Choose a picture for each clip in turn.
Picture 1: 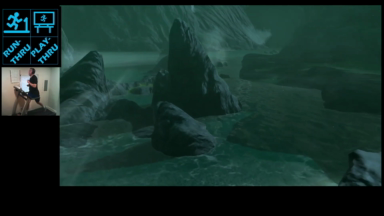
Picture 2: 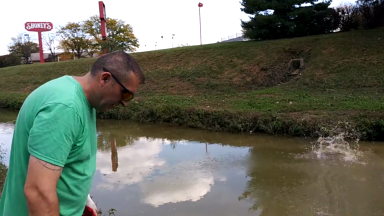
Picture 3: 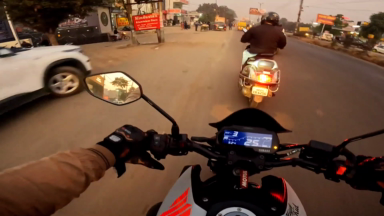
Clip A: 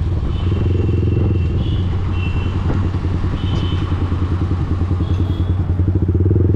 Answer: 3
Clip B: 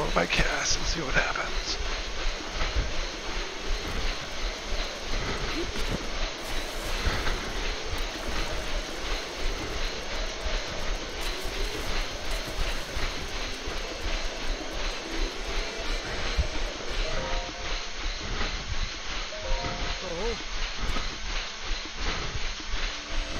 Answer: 1